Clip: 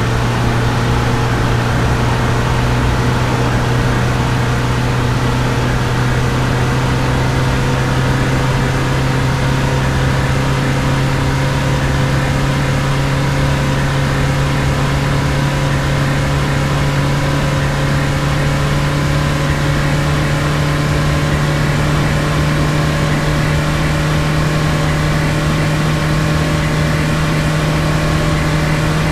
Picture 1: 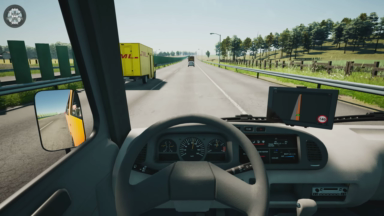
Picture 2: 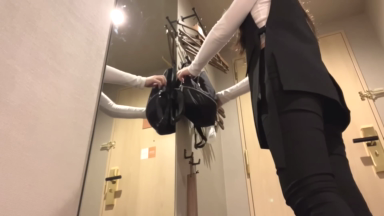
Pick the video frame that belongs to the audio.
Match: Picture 1